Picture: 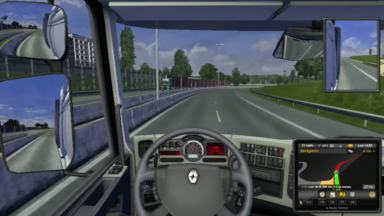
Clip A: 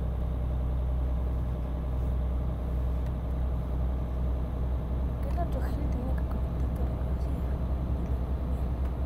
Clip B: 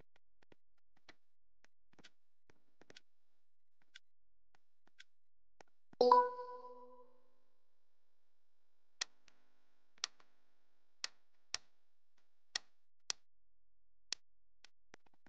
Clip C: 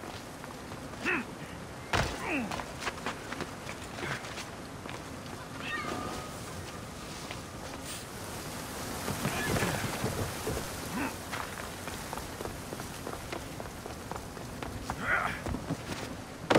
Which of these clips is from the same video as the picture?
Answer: A